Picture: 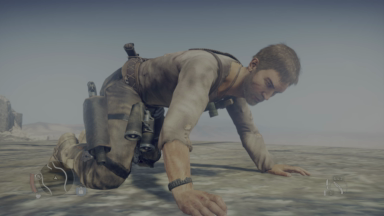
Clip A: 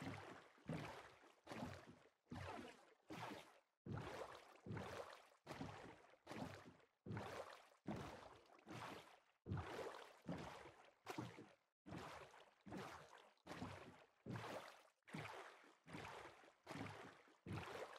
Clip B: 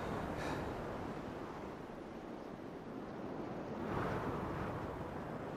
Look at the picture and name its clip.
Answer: B